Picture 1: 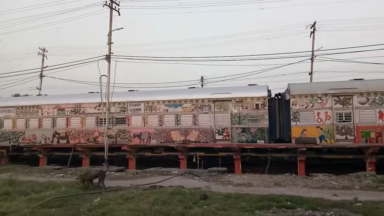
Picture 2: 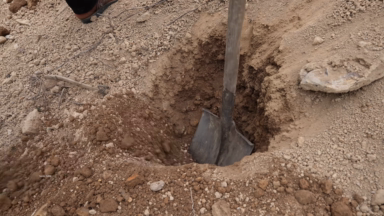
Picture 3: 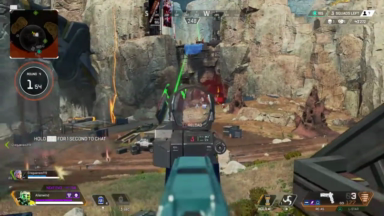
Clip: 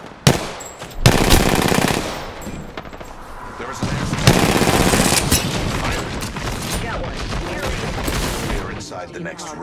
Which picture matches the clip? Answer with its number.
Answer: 3